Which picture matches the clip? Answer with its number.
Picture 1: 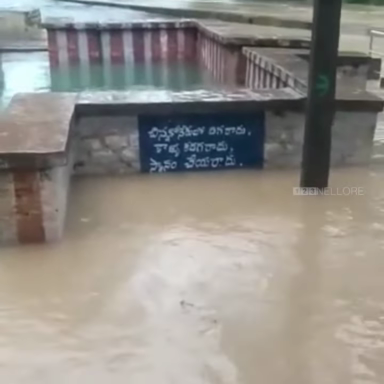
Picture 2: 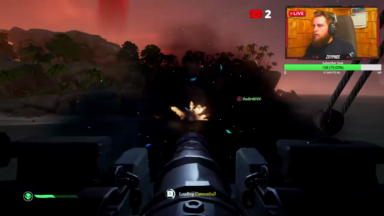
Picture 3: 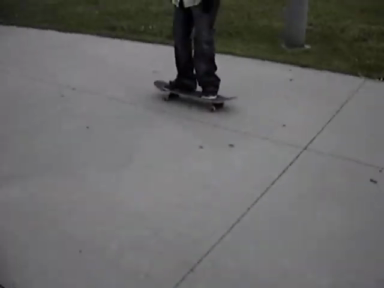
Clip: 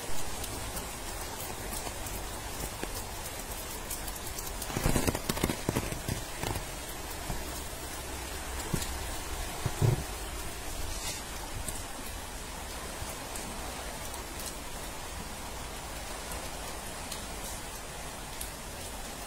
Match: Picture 1